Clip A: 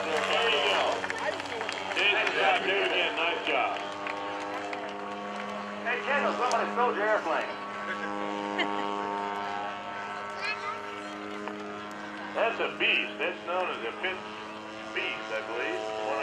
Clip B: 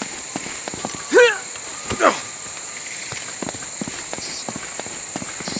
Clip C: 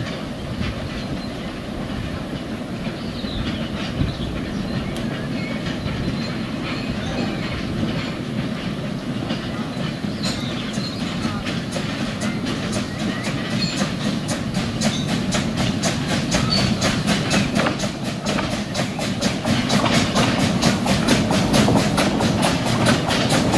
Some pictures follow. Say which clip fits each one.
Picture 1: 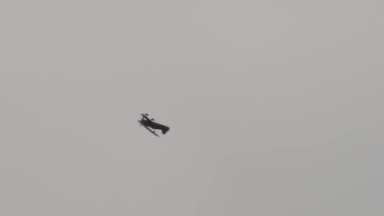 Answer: A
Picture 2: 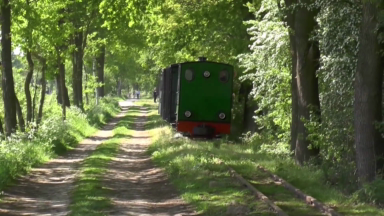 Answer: C